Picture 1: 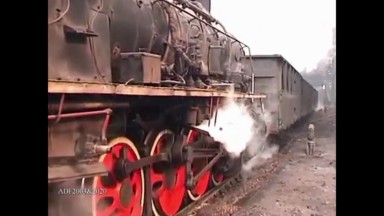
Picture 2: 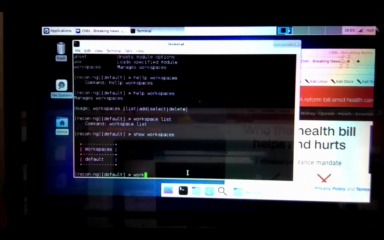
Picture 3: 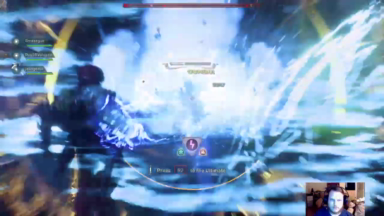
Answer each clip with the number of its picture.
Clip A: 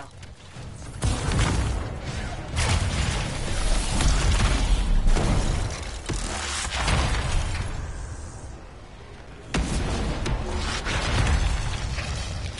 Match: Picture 3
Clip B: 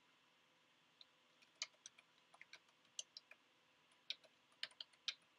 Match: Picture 2